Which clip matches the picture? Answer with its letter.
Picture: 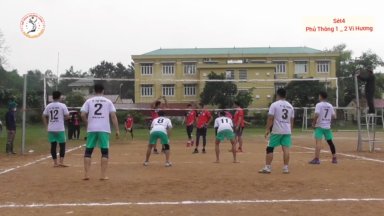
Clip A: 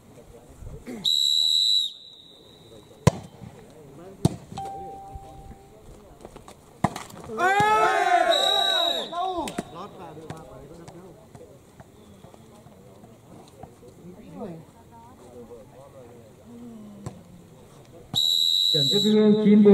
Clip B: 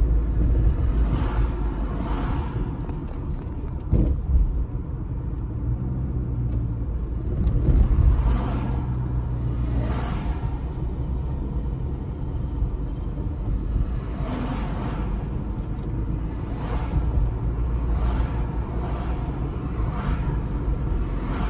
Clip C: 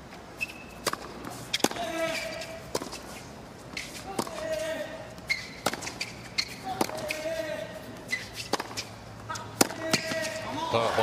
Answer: A